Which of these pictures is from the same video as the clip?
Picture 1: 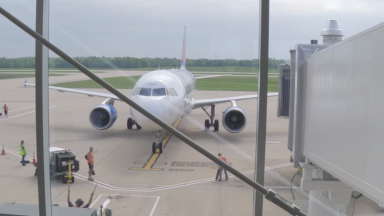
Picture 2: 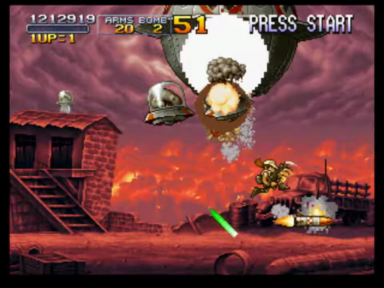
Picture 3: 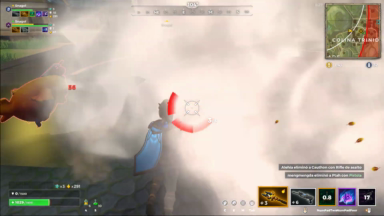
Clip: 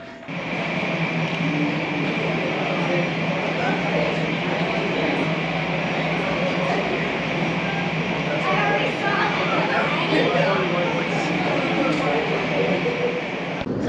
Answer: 1